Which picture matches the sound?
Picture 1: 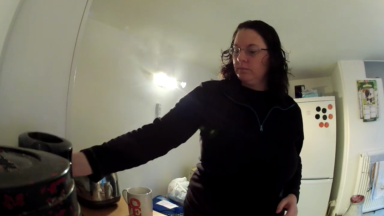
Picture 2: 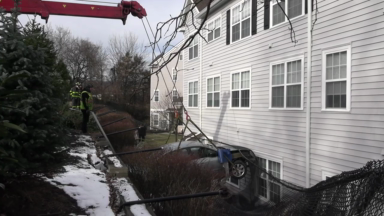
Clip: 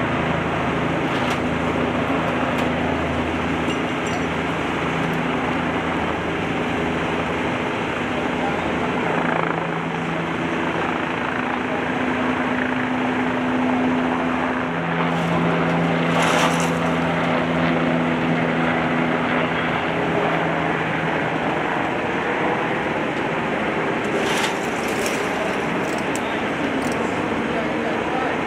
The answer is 2